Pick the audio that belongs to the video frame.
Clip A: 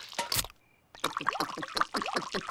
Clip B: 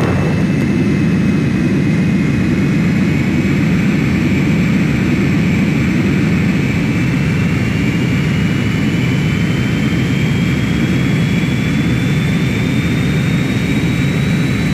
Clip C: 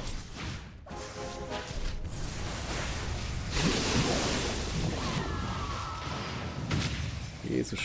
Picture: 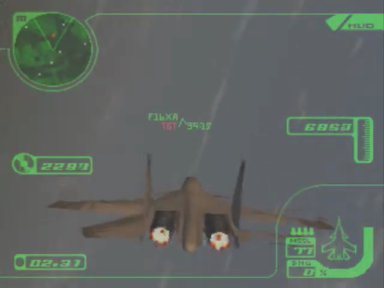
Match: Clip B